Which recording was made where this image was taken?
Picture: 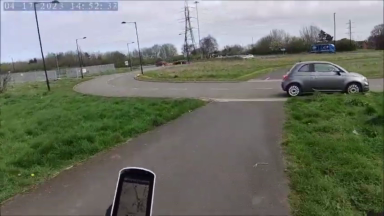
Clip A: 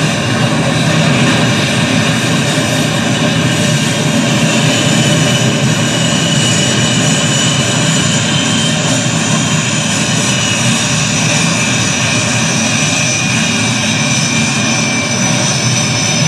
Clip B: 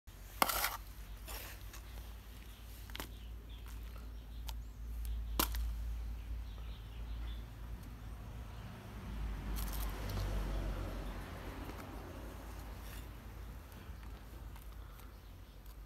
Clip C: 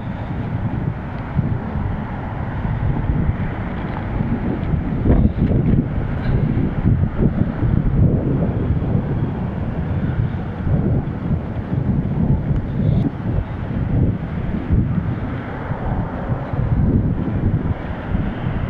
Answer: C